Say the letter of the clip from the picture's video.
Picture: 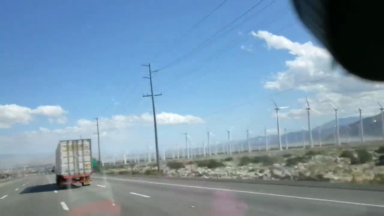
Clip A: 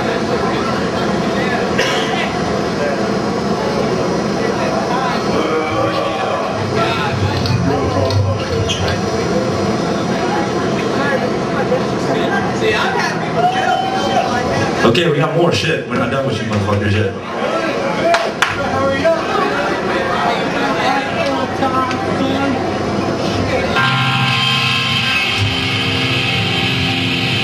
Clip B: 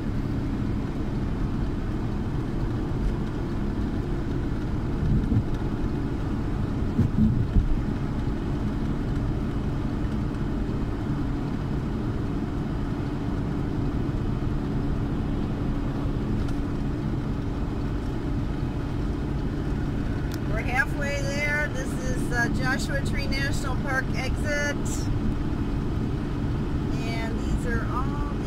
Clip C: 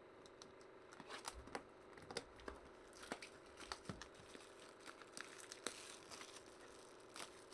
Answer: B